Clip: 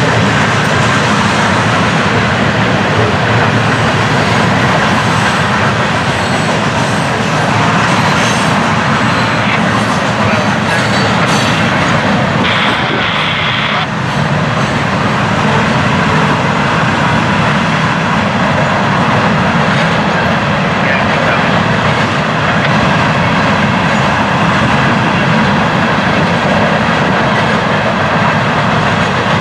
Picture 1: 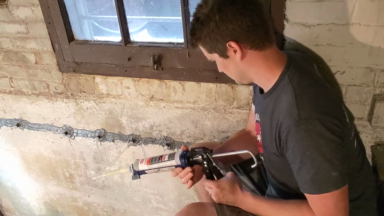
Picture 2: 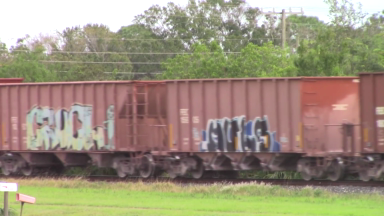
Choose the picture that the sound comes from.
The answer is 2